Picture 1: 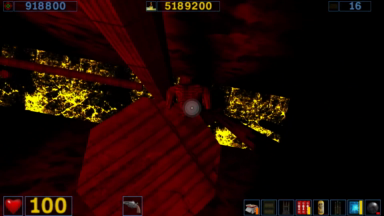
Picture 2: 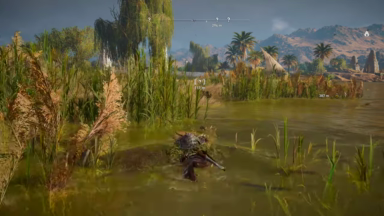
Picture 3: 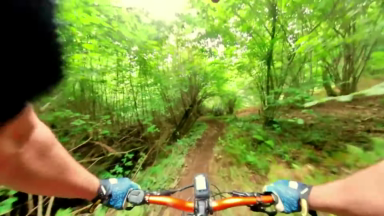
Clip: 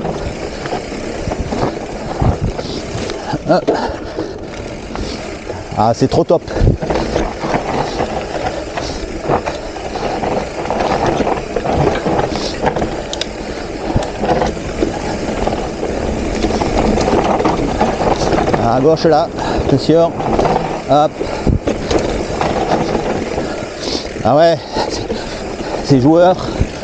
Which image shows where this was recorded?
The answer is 3